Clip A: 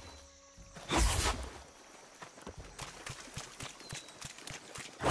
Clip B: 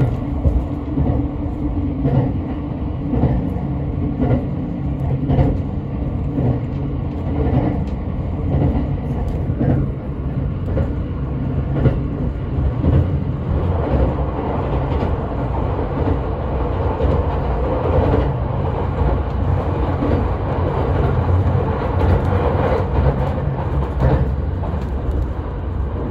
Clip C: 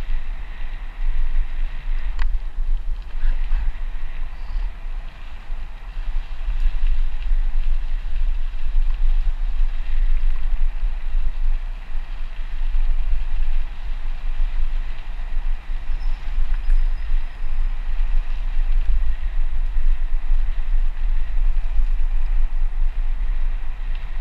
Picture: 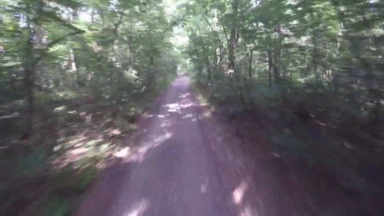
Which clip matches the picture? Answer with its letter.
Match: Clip C